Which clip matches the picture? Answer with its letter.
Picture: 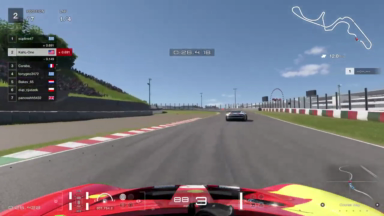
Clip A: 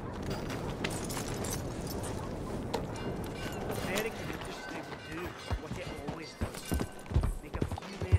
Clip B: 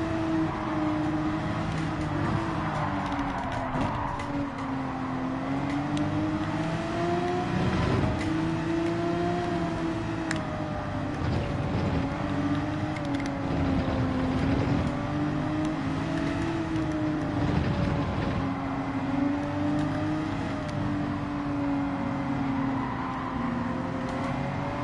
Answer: B